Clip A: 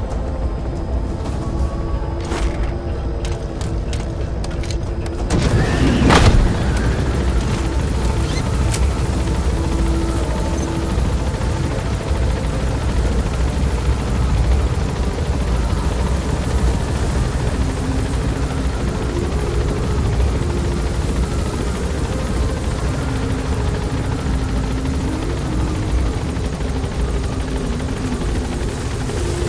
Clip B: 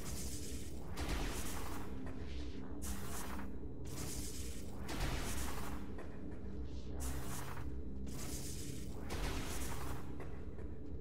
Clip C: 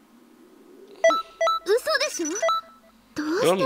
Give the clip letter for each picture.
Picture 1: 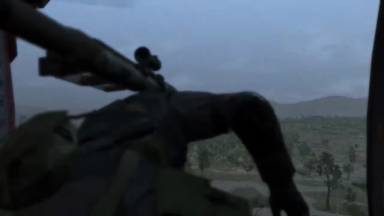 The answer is A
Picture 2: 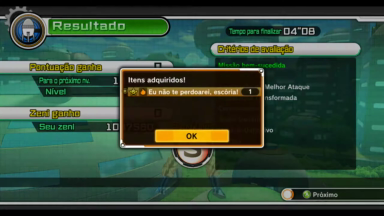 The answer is C